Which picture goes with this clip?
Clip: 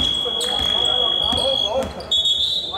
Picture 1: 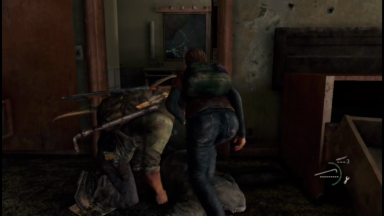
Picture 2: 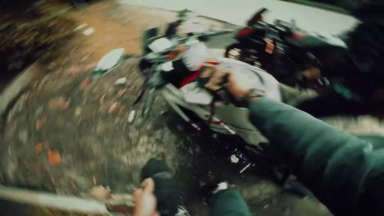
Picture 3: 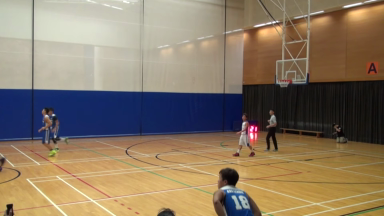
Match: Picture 3